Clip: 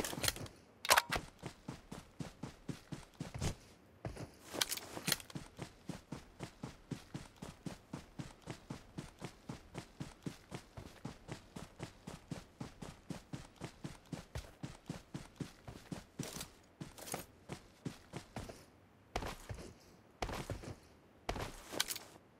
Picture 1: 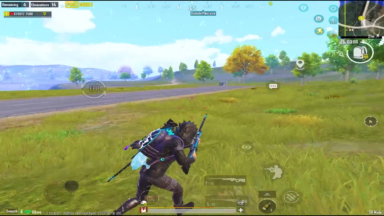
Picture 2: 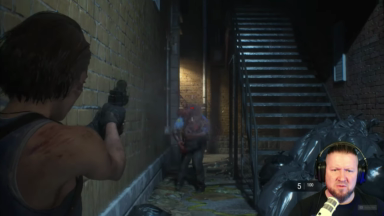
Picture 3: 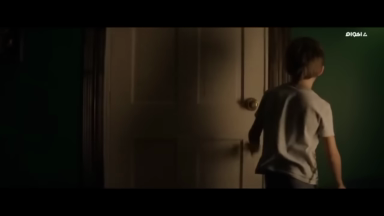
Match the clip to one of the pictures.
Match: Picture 1